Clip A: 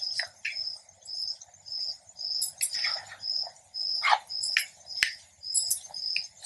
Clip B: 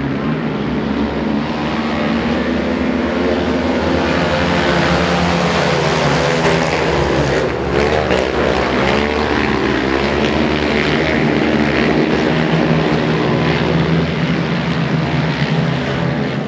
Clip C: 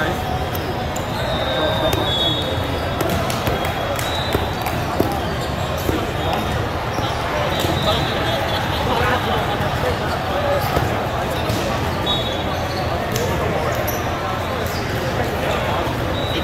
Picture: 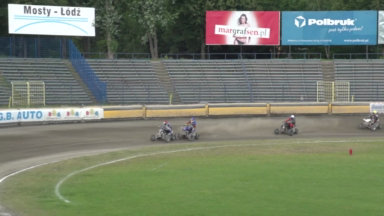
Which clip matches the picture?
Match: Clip B